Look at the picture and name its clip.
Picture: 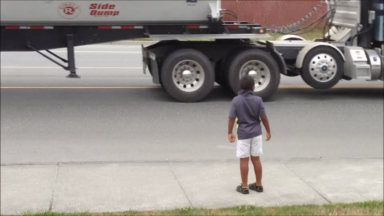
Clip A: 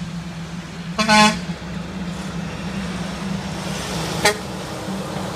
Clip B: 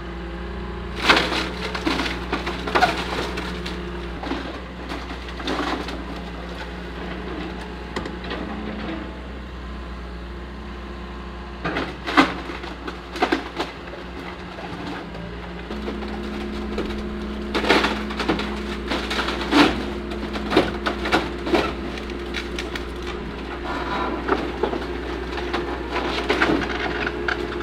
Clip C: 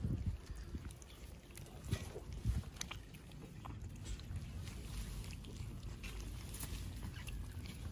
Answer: A